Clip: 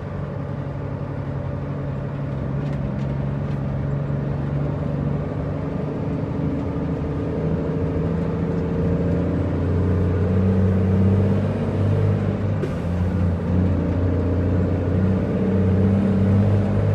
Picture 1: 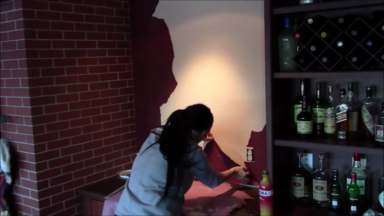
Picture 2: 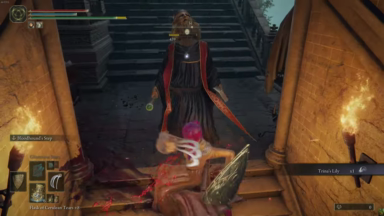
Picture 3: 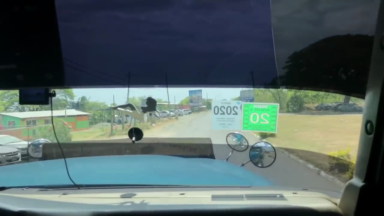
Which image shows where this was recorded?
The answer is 3